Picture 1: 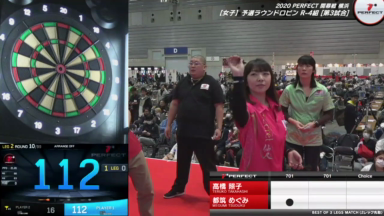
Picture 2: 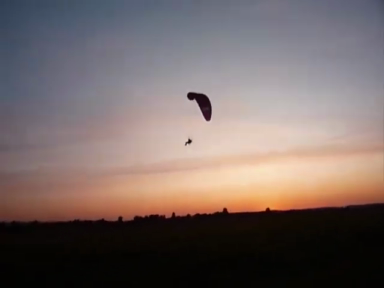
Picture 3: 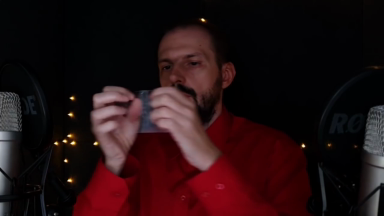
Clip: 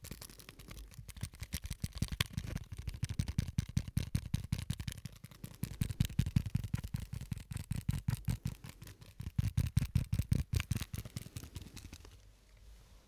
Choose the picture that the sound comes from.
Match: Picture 3